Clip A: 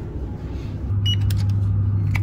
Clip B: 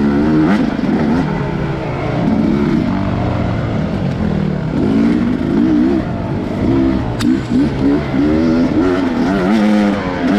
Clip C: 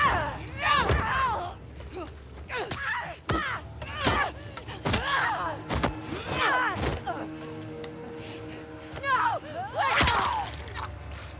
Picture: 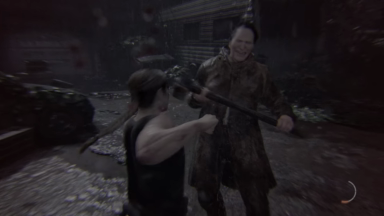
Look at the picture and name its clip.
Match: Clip C